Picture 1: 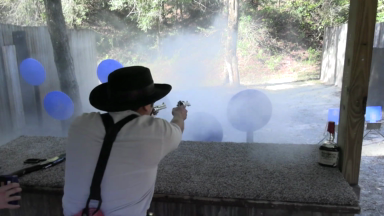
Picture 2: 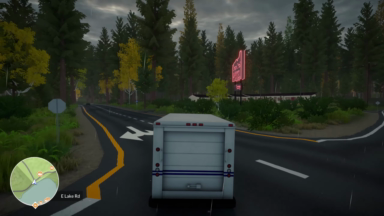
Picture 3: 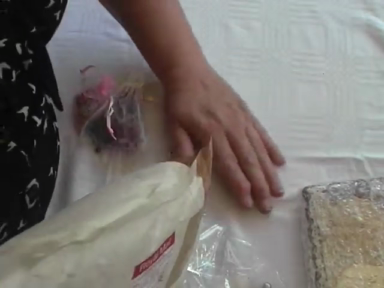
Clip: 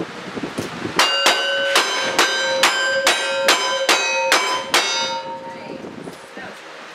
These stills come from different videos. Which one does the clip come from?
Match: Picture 1